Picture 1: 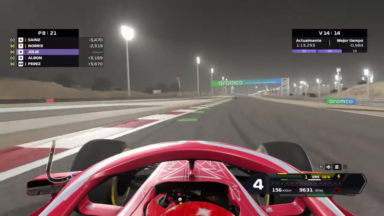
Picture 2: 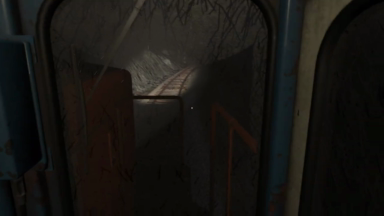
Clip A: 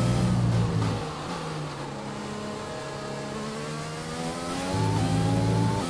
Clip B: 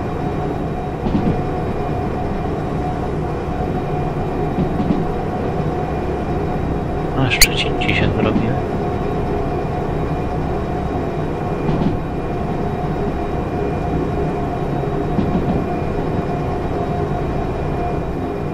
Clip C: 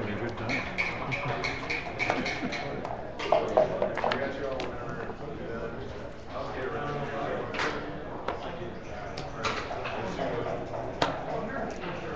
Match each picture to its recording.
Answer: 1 A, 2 B